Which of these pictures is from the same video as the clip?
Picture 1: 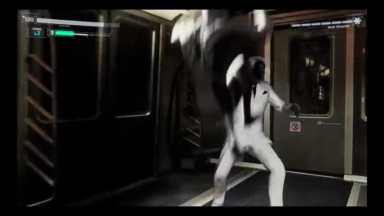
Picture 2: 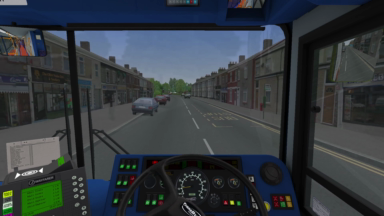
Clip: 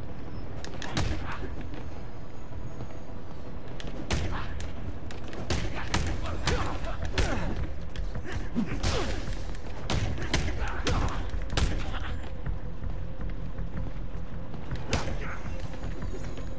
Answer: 1